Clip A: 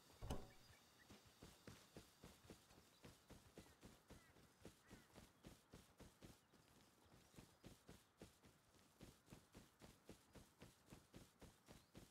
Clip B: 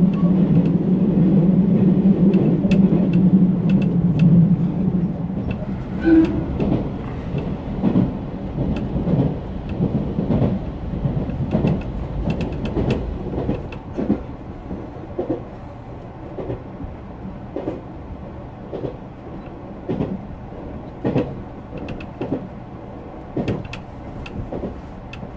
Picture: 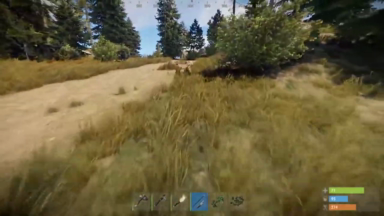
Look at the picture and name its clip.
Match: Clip A